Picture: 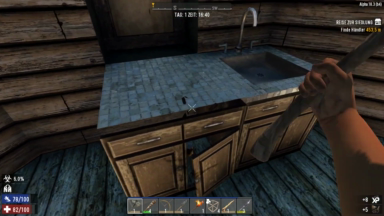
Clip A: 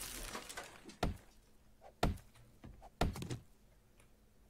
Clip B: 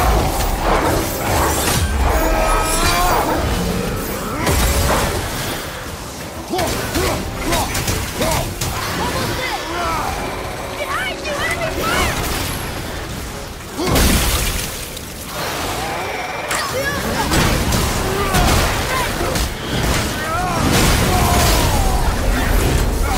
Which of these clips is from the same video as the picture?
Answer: A